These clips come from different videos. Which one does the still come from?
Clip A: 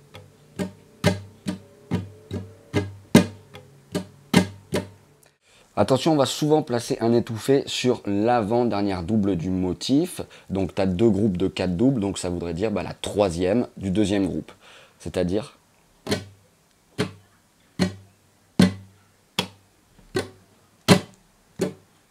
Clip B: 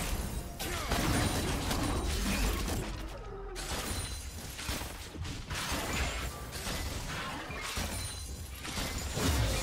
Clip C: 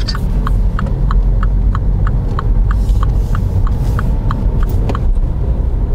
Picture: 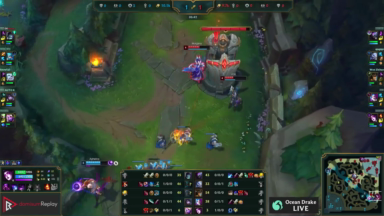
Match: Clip B